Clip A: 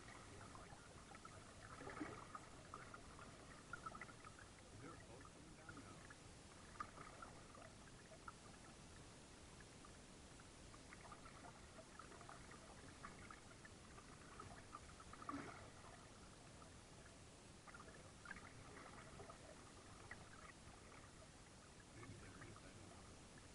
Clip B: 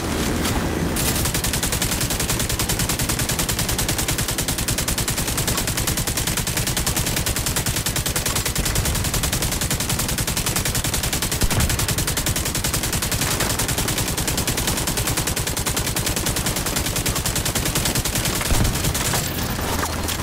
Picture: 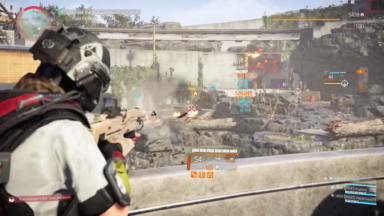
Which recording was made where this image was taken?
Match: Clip B